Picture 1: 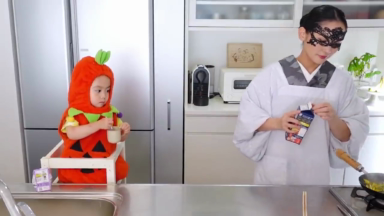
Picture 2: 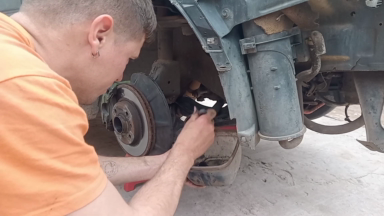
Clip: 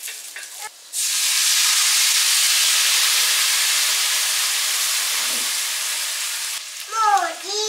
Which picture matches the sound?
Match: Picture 1